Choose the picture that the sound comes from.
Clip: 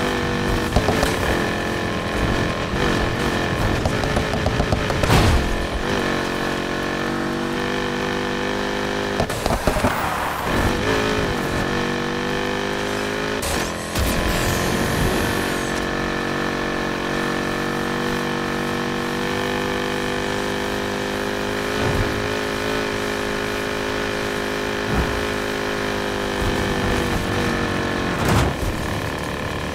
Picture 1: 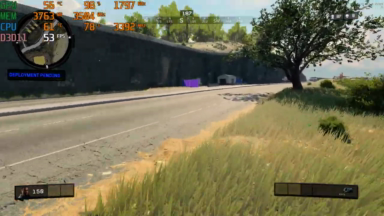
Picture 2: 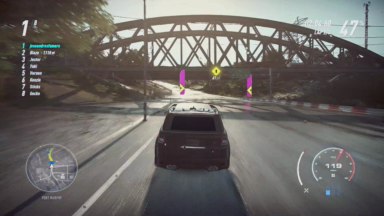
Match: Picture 2